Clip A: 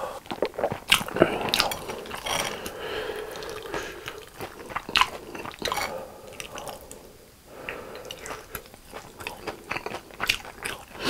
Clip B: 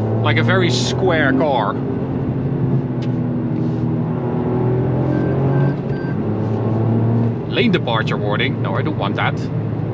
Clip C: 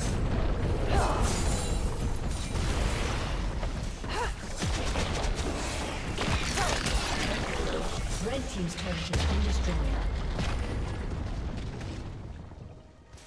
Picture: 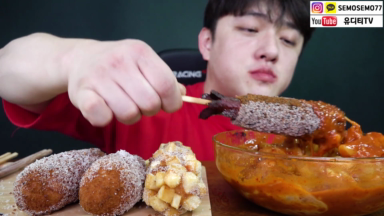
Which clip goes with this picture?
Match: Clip A